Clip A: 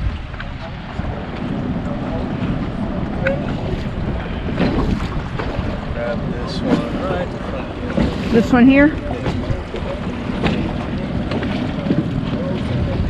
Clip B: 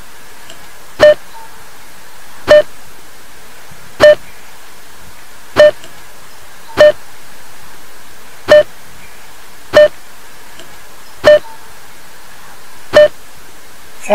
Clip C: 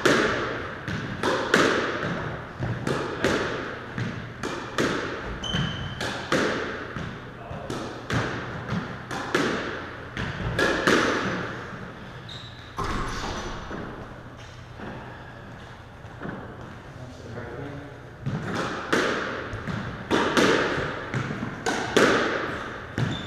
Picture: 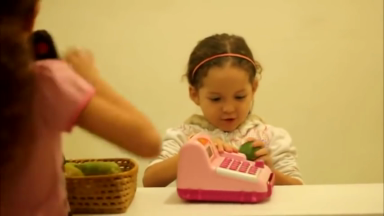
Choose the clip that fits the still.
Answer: B